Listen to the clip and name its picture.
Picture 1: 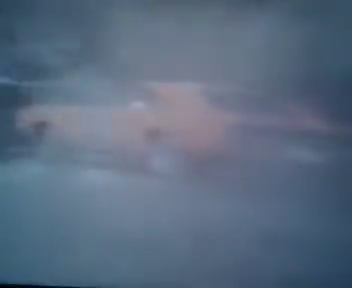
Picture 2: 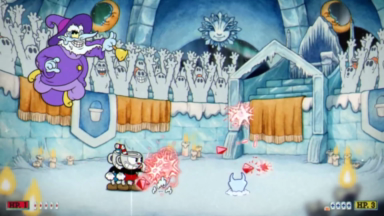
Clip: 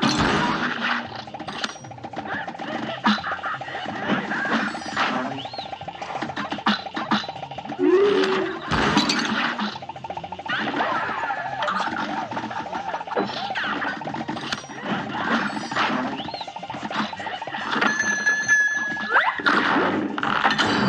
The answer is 2